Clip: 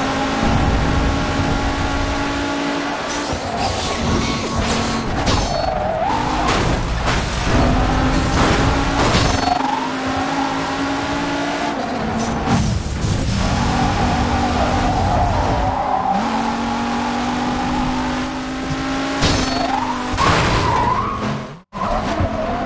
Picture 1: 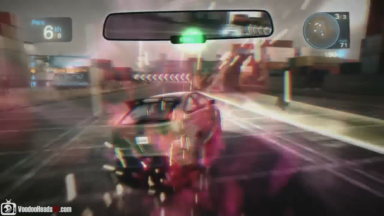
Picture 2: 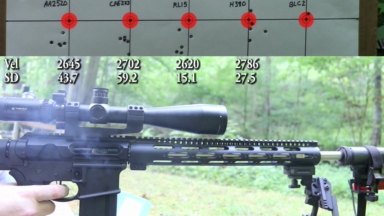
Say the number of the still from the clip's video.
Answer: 1